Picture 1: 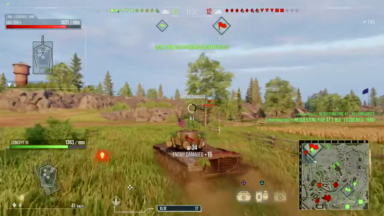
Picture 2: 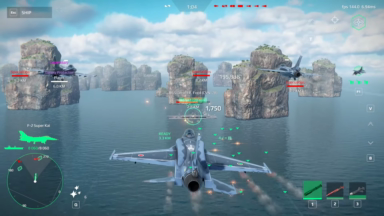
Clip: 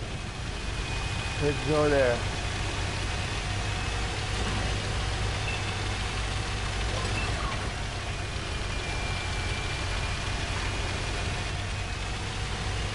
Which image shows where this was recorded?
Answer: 1